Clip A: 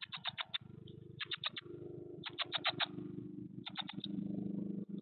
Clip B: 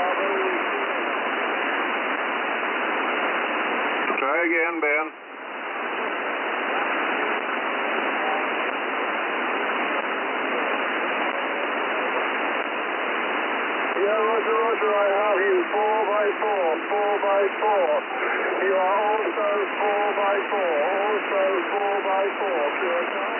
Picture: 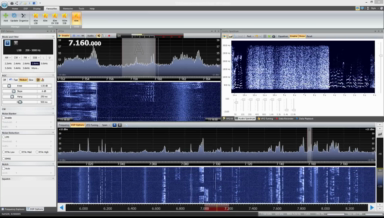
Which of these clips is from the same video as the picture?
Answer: B